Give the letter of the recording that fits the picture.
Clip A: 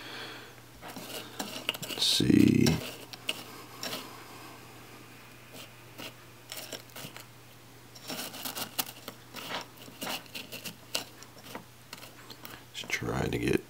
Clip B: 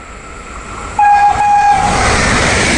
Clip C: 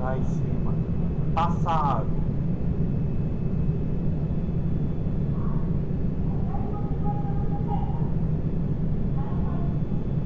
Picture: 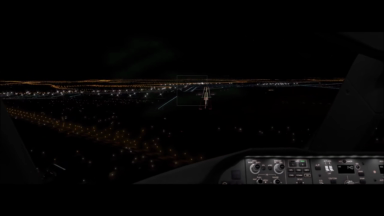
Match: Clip C